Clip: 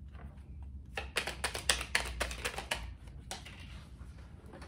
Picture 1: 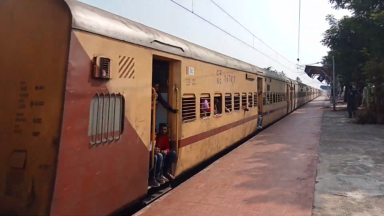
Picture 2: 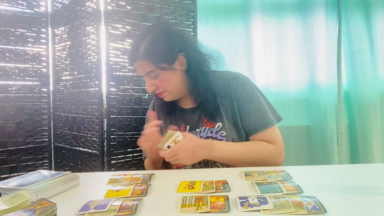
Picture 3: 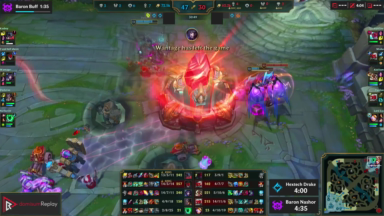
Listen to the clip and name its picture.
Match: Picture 2